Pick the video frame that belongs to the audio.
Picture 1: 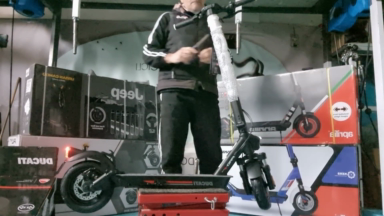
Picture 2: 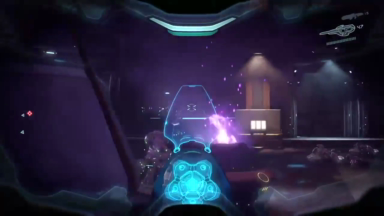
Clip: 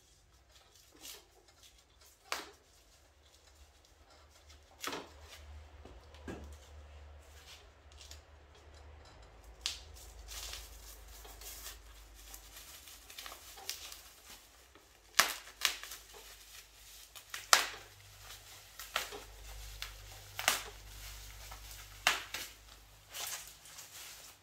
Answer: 1